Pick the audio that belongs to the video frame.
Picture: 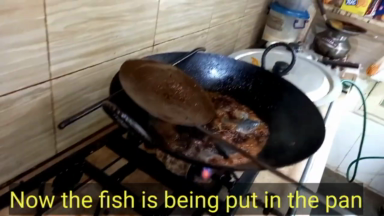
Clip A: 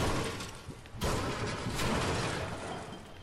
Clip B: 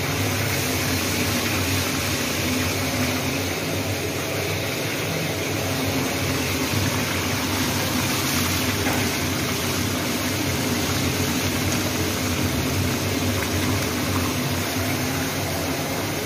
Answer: B